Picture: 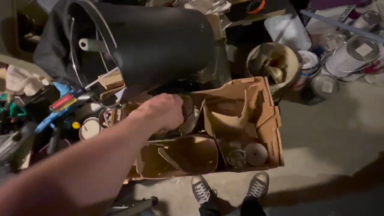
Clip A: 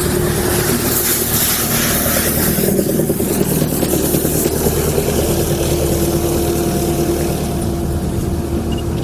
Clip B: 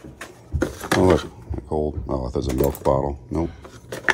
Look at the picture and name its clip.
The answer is B